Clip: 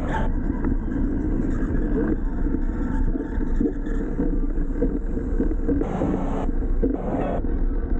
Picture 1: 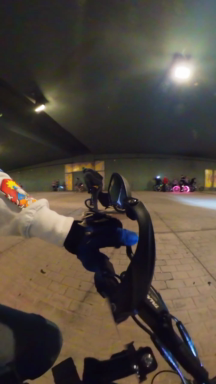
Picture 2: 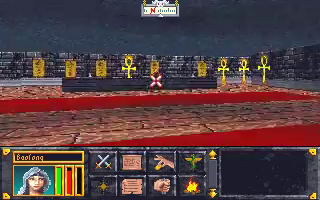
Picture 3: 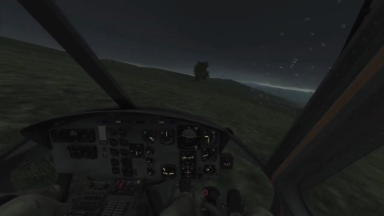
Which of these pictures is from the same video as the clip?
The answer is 1